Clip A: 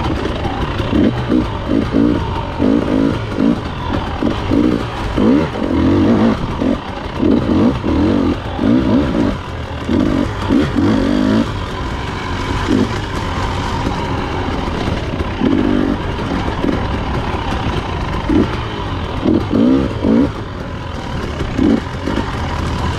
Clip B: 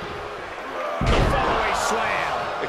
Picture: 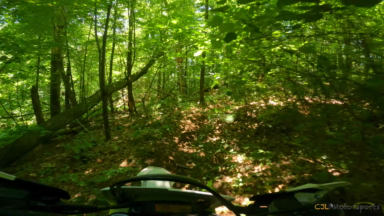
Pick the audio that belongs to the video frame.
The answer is A